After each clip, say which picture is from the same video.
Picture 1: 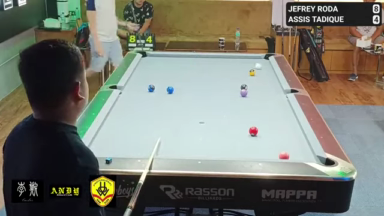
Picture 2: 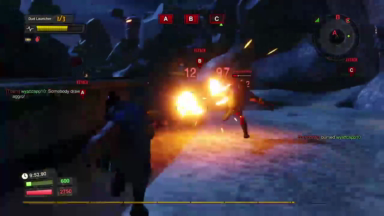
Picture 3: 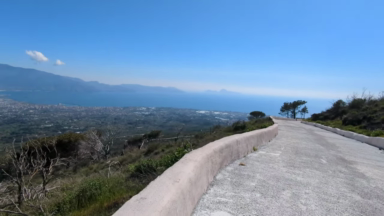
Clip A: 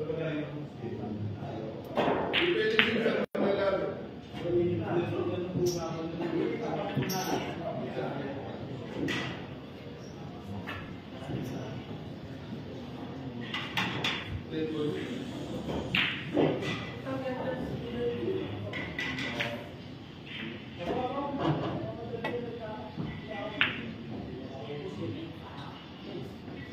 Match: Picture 1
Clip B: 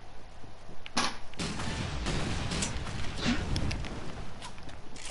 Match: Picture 2